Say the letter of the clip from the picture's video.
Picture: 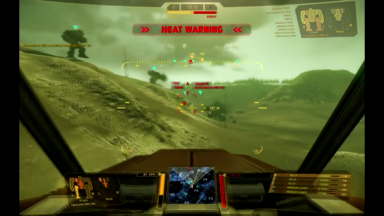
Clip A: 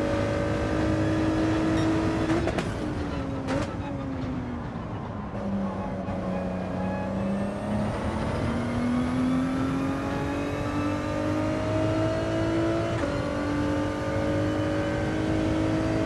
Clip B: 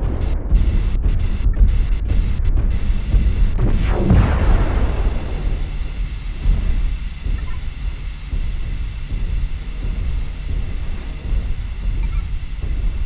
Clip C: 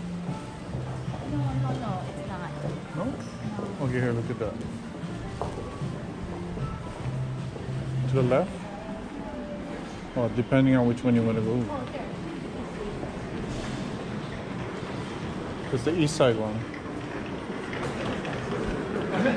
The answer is B